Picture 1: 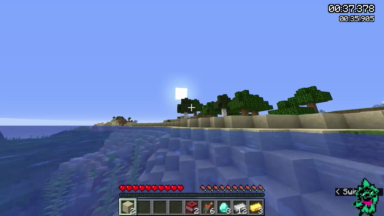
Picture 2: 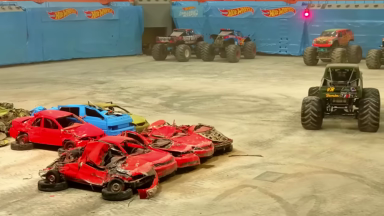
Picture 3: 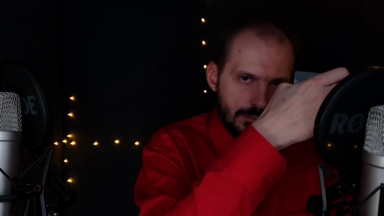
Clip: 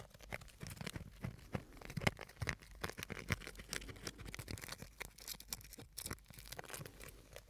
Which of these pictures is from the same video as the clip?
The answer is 3